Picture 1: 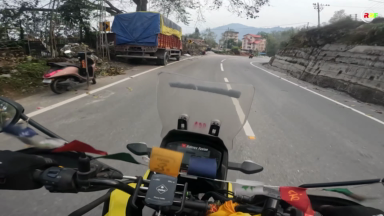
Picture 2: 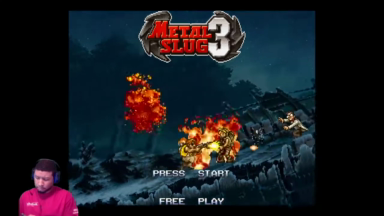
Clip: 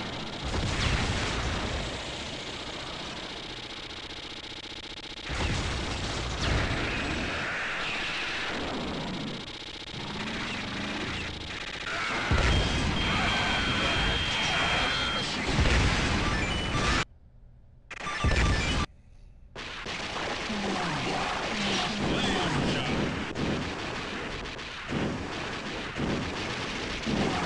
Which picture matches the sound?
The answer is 2